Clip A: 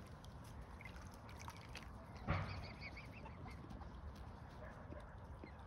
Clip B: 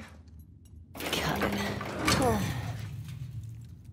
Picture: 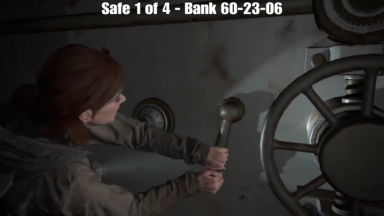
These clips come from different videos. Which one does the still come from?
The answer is B